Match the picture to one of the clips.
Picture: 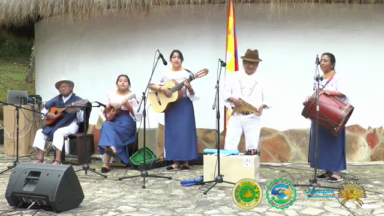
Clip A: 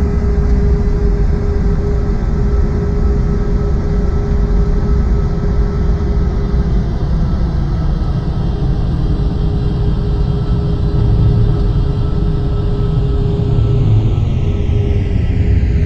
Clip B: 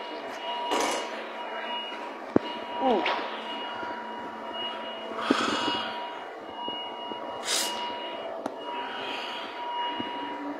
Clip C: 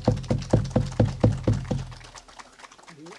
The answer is C